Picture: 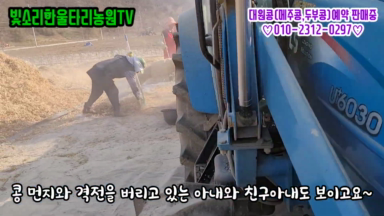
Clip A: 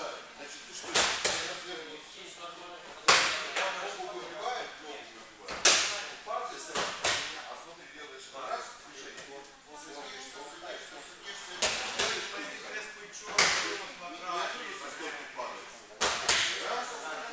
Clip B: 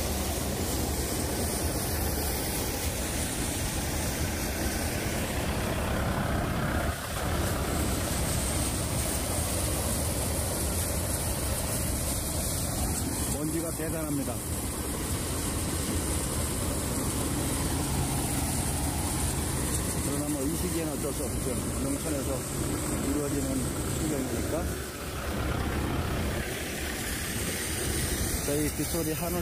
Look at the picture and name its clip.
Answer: B